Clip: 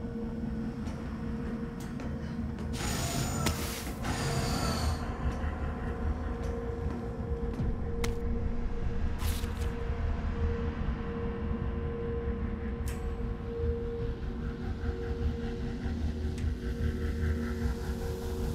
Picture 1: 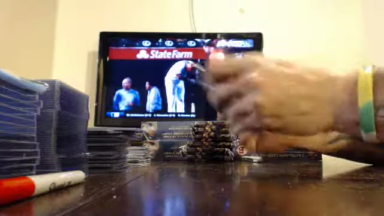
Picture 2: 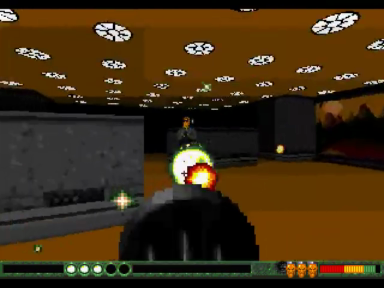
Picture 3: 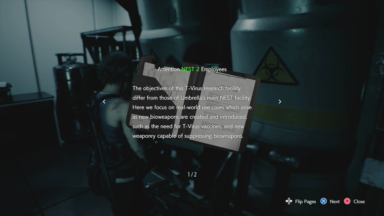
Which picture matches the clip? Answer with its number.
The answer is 3